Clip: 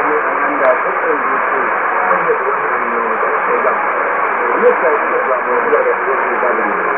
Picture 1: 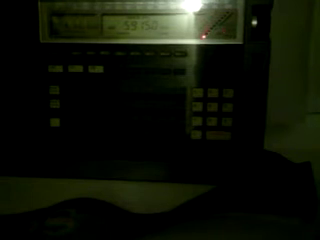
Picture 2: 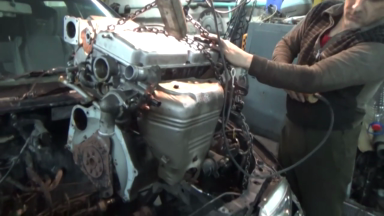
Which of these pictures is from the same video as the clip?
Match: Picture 1